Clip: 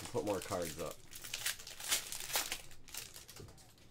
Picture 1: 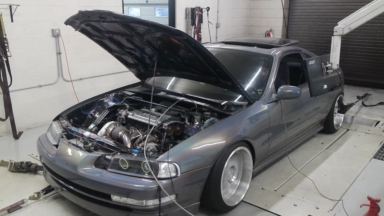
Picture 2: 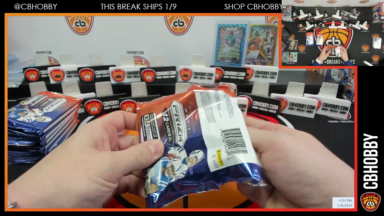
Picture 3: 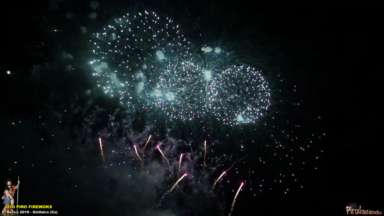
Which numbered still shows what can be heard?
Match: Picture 2